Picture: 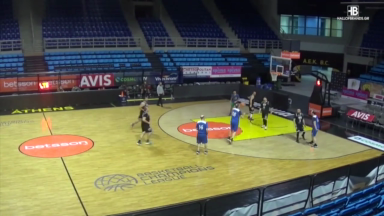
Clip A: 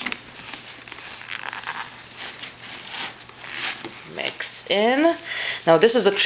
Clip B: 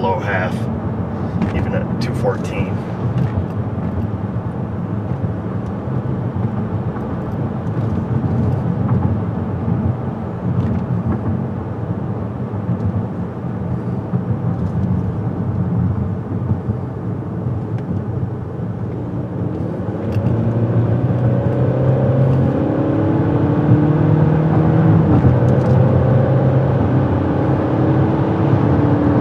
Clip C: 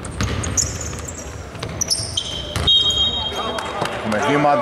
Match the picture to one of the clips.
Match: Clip C